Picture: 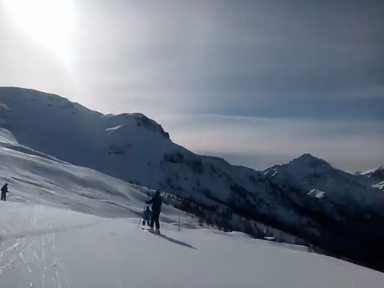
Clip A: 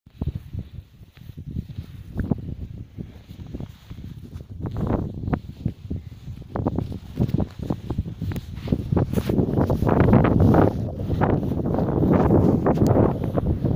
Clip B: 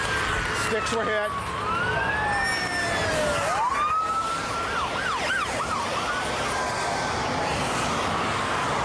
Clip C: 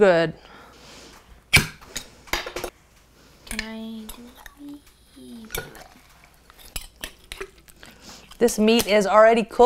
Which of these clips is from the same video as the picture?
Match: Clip A